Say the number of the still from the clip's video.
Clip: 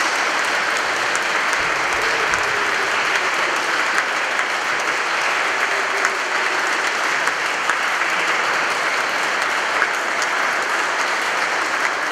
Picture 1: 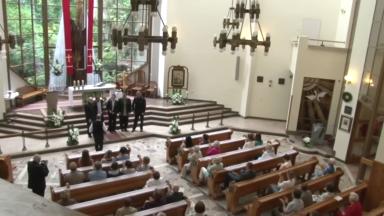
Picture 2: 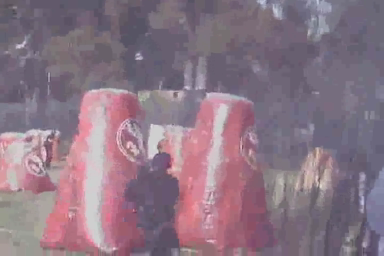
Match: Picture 1